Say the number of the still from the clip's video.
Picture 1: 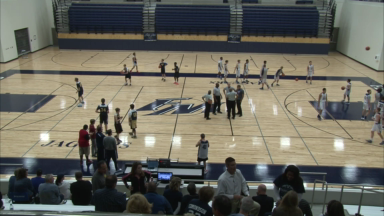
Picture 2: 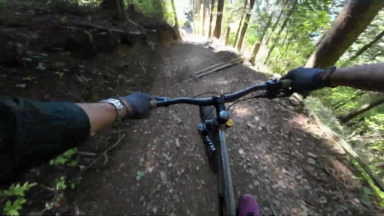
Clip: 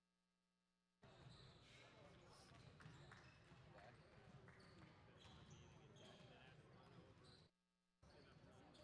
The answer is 1